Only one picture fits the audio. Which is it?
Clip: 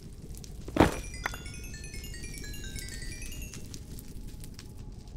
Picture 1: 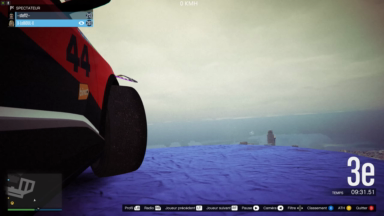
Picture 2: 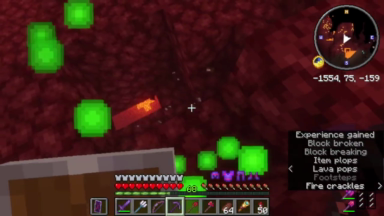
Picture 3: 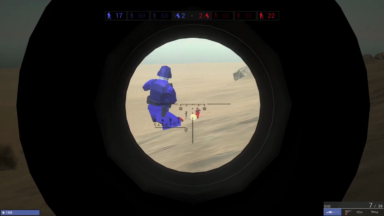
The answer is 2